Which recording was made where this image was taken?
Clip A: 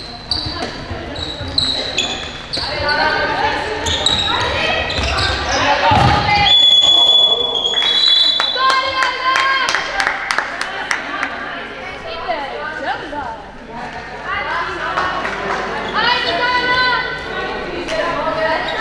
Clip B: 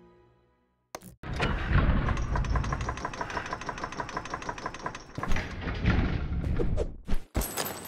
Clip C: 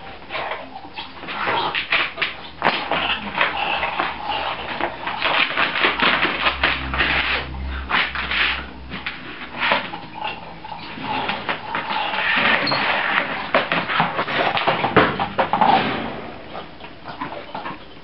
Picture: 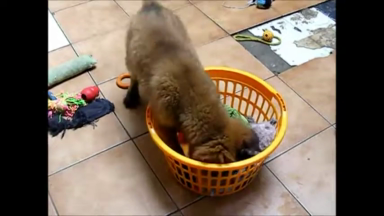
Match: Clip C